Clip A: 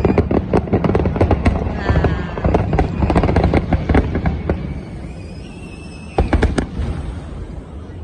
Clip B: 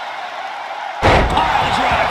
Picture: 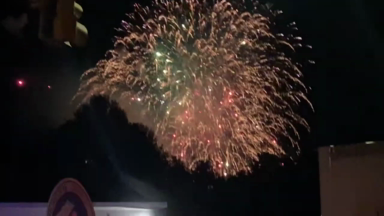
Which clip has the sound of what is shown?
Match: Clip A